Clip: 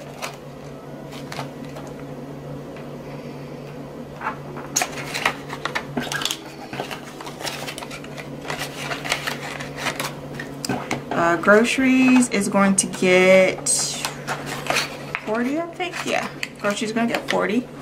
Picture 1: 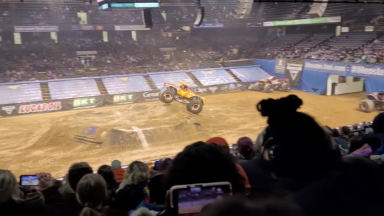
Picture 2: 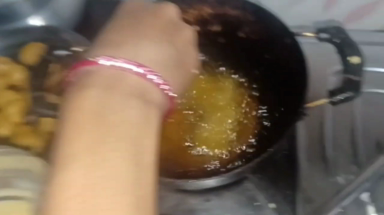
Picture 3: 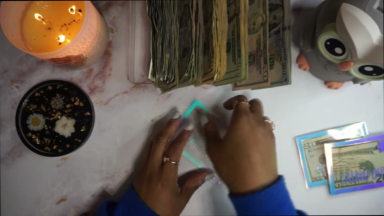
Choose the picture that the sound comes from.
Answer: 3